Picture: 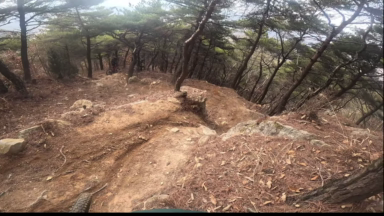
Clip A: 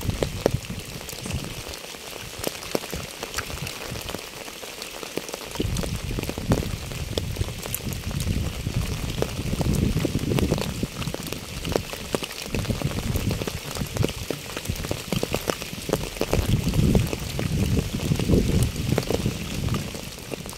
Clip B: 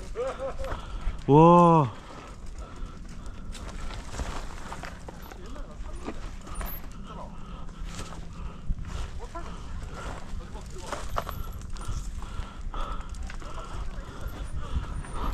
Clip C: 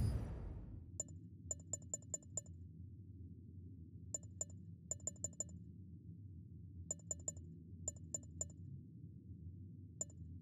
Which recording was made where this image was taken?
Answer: B